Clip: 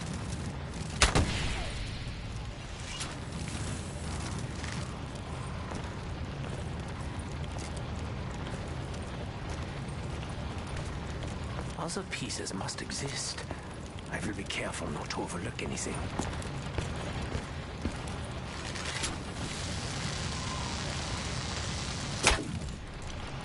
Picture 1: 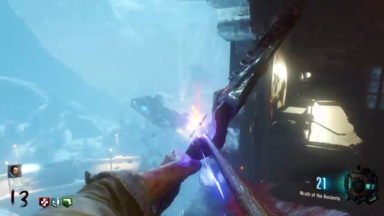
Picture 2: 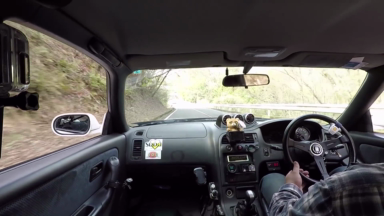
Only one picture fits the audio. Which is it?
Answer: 1